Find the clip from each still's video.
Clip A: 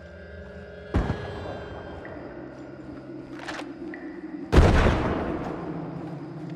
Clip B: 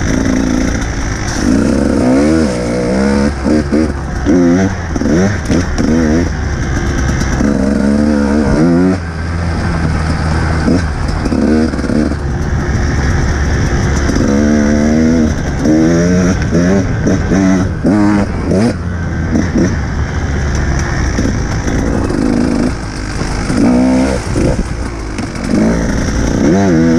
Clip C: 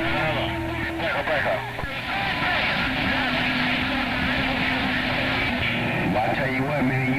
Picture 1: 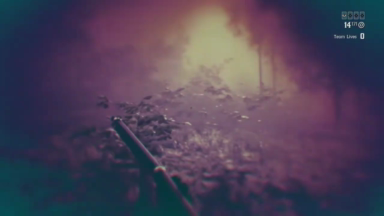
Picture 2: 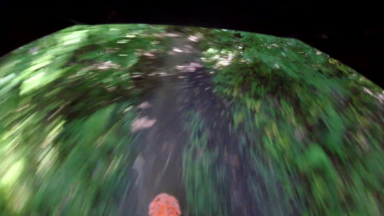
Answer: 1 A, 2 B